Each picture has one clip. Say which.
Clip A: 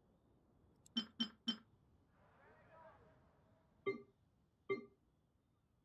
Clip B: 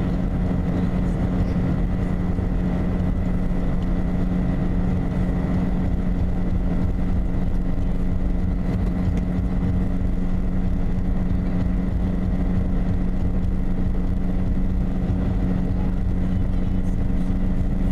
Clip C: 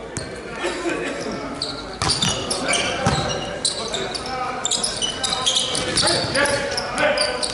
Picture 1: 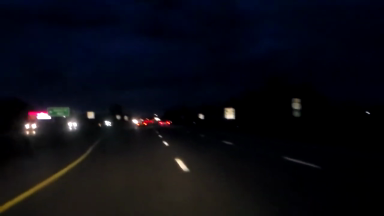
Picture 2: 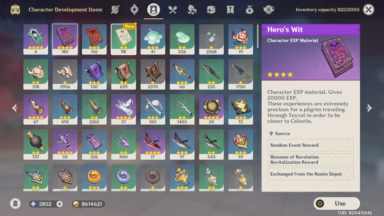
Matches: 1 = B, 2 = A